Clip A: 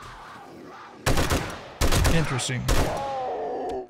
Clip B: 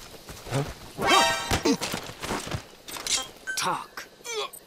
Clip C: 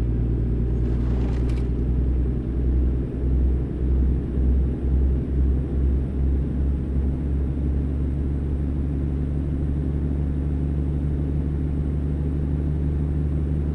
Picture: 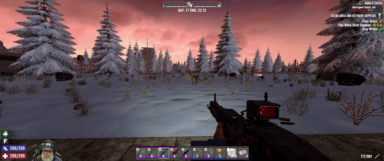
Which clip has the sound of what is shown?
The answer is A